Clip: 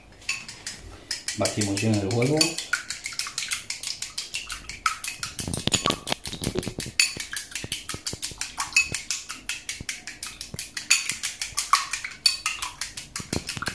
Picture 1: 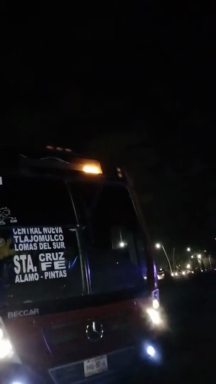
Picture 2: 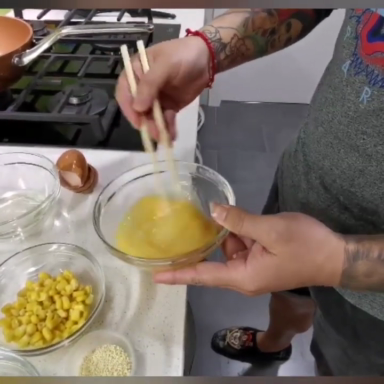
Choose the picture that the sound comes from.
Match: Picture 2